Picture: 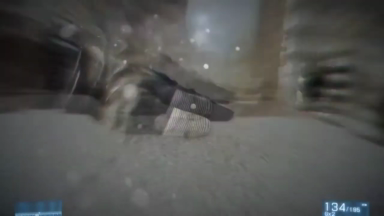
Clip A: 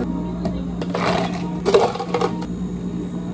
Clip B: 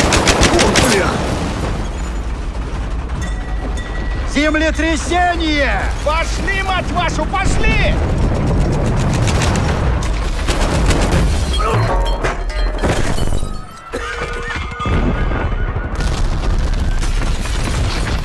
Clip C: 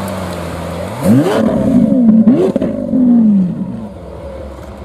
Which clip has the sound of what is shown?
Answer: B